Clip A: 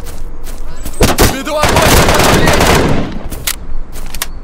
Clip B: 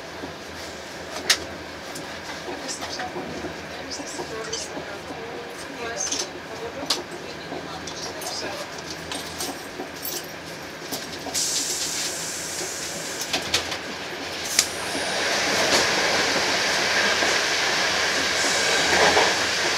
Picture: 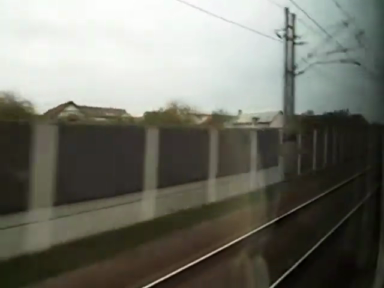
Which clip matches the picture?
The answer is B